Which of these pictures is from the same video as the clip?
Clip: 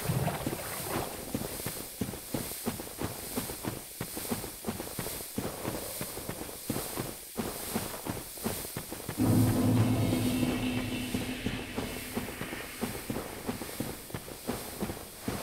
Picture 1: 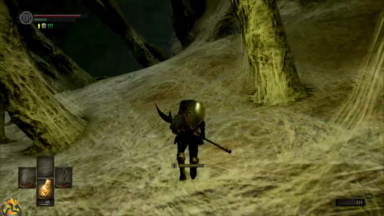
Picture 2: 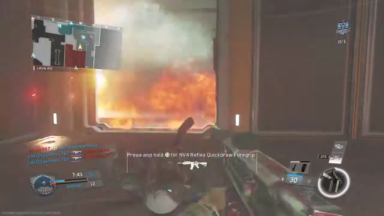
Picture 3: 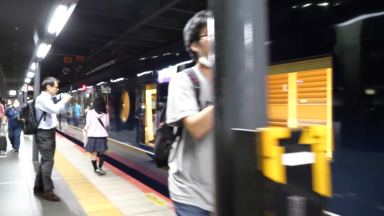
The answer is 1